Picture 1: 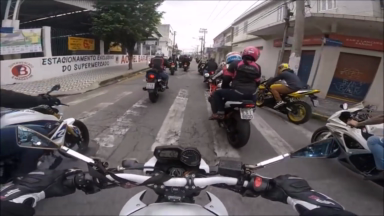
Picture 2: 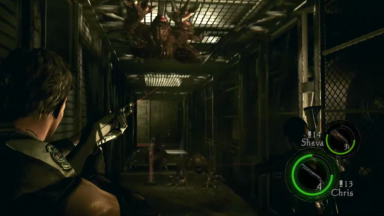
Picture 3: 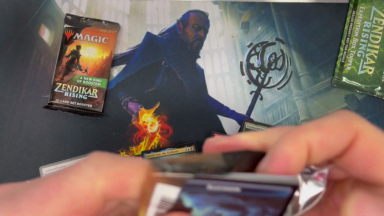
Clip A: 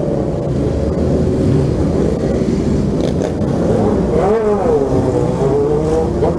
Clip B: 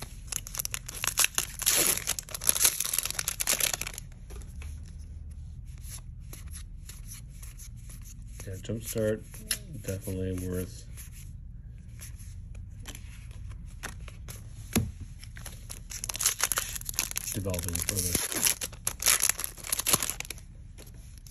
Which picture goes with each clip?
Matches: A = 1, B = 3